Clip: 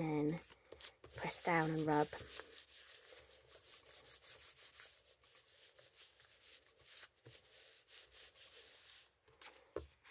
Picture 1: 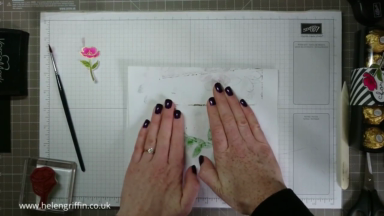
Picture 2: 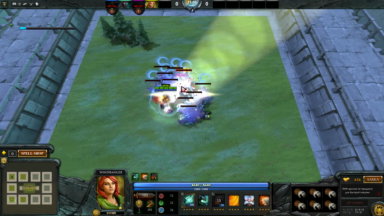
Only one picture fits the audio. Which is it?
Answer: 1